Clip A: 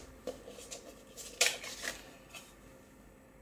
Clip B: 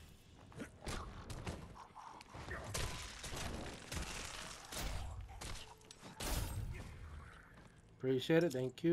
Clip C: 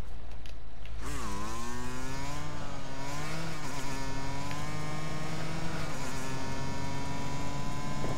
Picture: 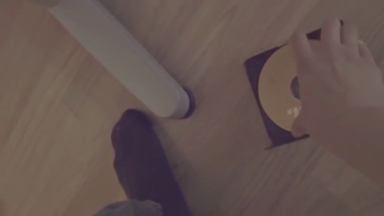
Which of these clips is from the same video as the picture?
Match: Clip A